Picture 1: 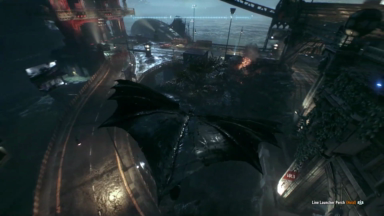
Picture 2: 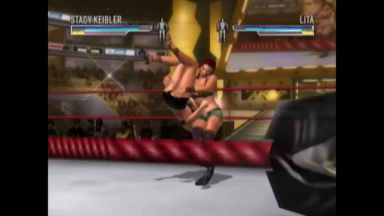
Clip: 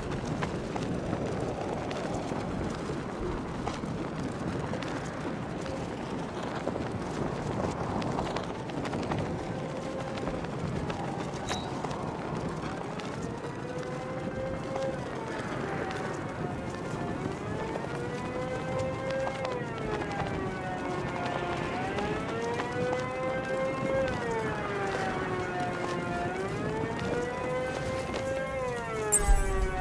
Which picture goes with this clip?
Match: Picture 1